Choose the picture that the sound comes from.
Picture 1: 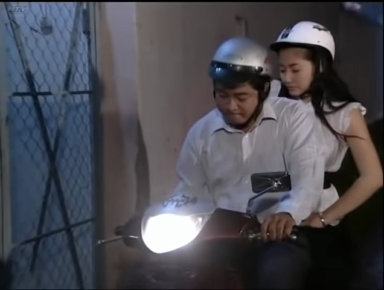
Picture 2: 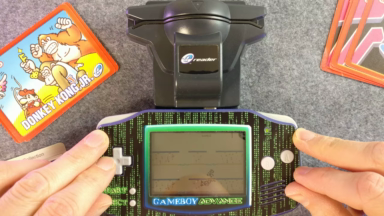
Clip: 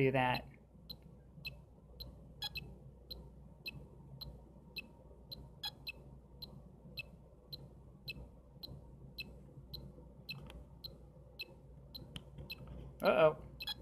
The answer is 2